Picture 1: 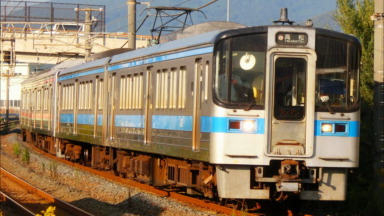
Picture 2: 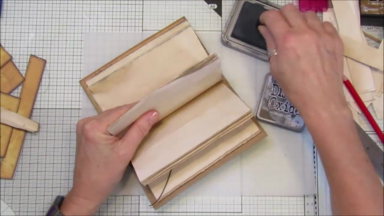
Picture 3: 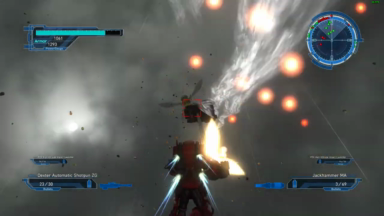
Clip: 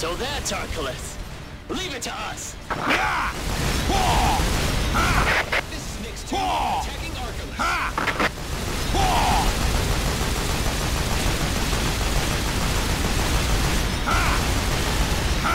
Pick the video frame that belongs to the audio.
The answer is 3